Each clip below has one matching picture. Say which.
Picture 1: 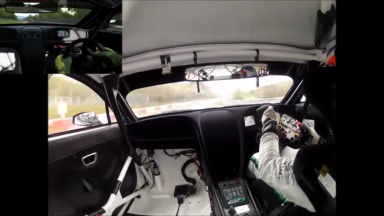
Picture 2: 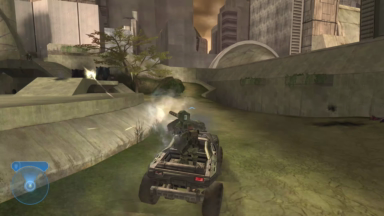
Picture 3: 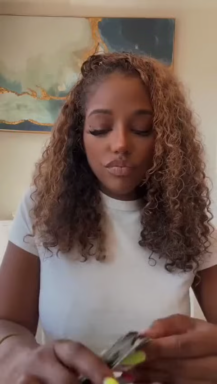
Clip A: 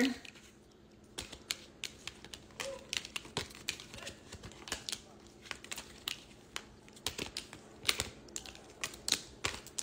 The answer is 3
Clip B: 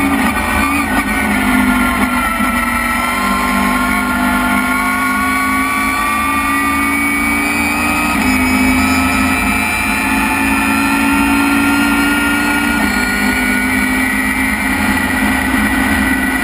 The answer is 1